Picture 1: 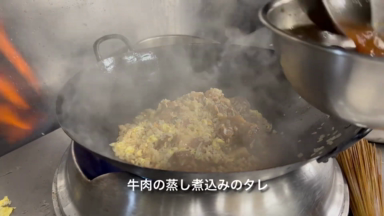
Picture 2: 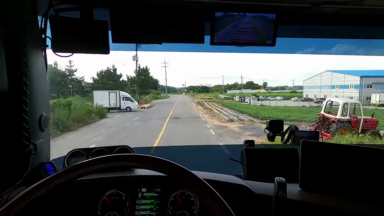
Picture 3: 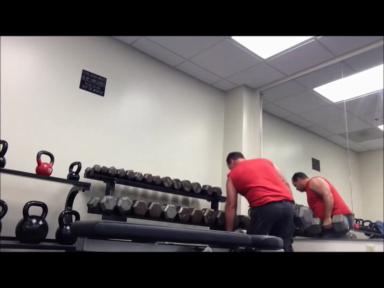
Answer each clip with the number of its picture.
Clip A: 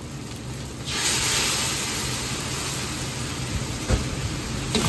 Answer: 1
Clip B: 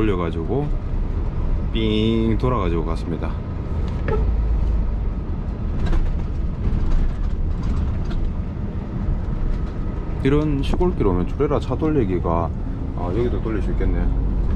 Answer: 2